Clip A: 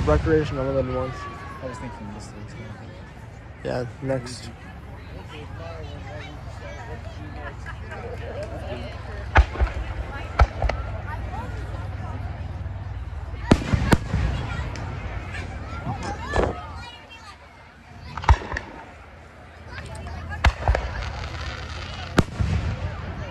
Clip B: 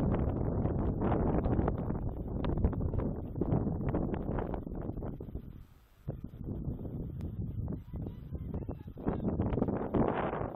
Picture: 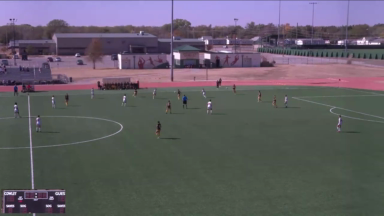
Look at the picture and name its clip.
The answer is B